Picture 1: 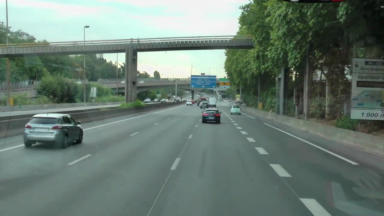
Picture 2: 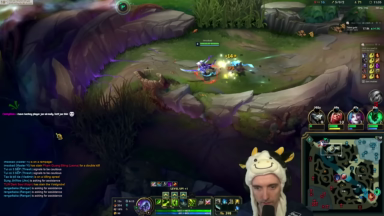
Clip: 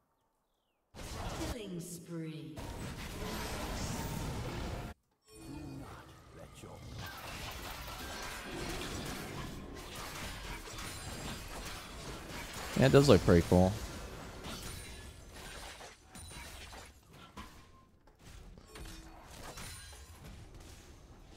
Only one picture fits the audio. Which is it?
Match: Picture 2